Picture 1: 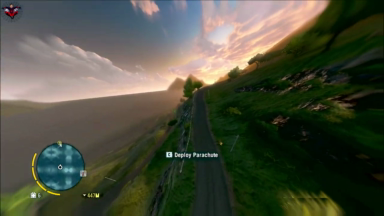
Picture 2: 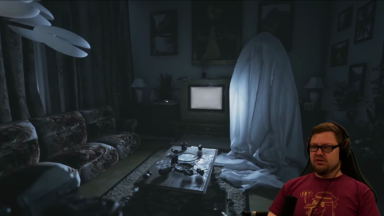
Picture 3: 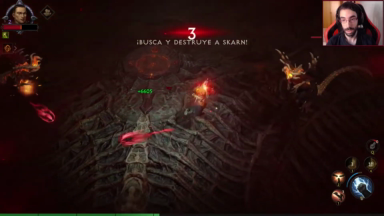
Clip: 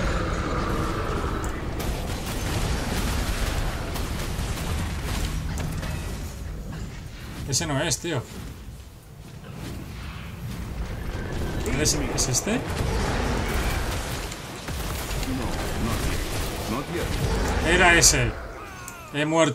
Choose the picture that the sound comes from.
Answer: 3